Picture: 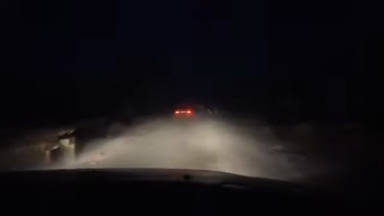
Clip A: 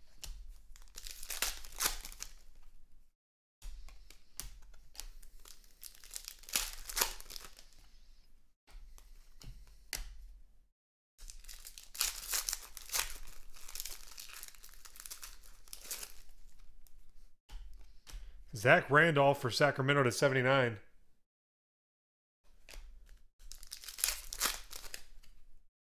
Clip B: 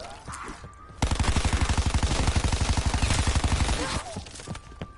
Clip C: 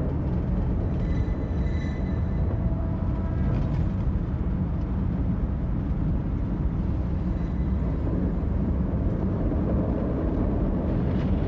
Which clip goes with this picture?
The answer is C